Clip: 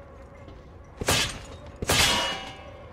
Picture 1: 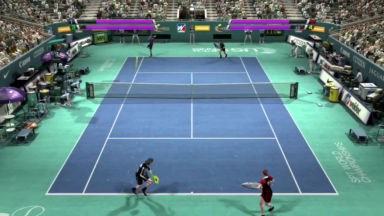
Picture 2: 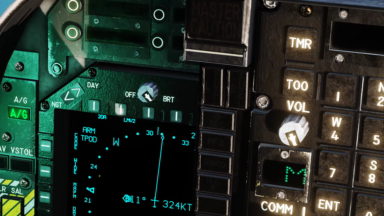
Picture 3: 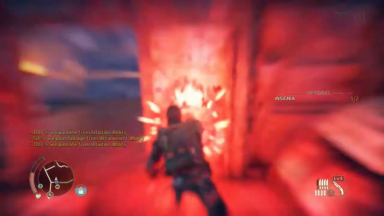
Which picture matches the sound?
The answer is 3